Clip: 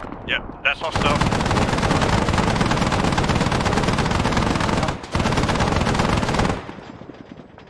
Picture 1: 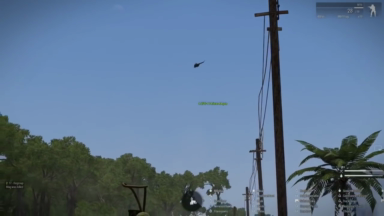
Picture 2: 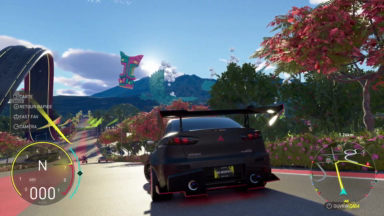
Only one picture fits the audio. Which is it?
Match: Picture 1